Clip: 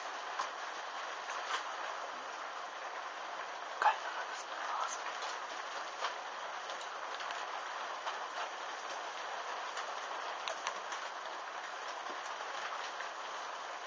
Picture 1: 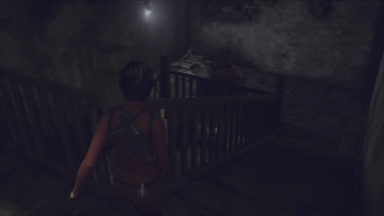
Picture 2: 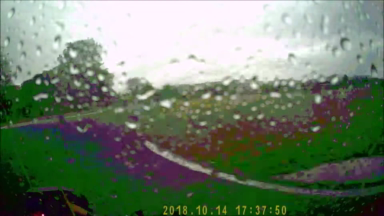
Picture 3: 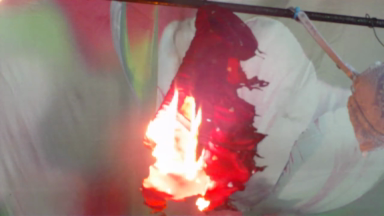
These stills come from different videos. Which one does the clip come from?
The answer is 3